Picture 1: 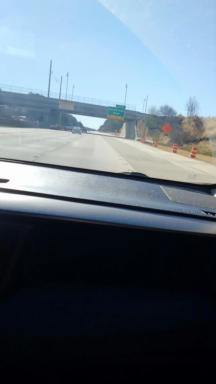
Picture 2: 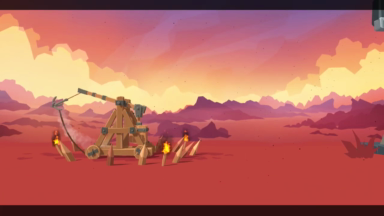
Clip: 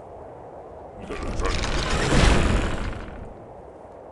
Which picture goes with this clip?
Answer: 2